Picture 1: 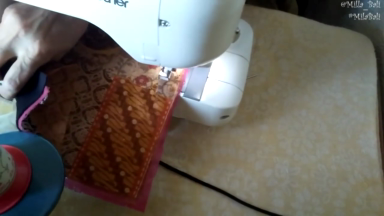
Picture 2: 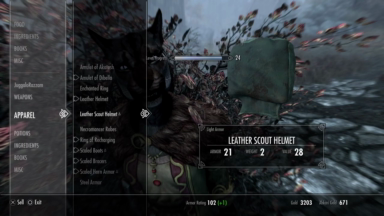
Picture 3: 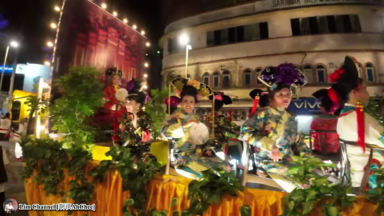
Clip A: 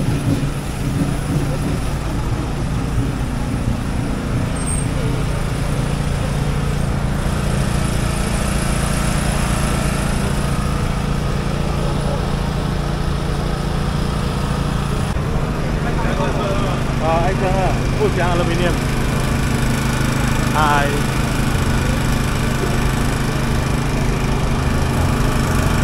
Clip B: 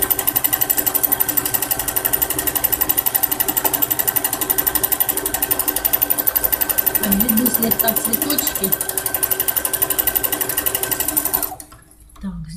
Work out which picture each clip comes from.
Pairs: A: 3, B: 1